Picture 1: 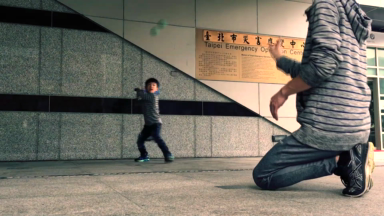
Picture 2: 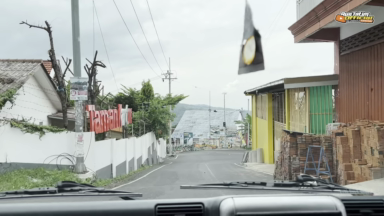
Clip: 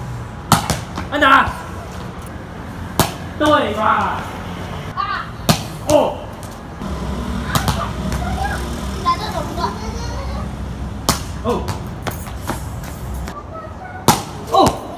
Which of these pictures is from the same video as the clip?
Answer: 1